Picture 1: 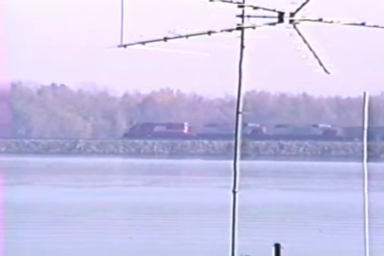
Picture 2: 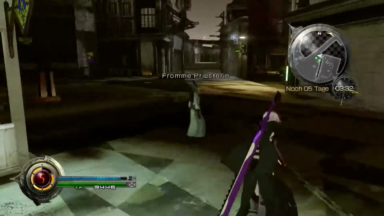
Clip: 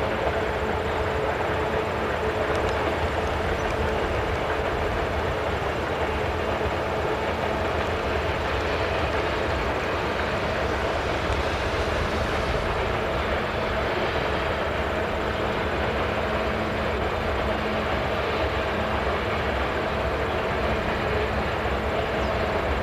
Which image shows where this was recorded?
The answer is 1